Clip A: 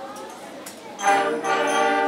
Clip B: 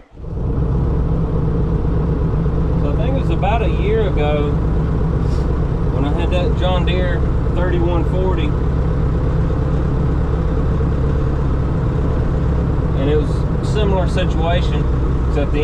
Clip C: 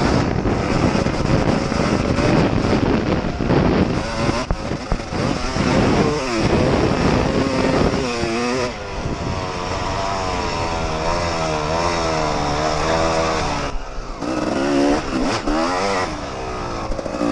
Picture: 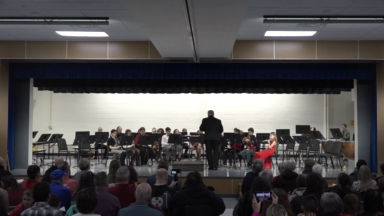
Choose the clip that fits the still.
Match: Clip A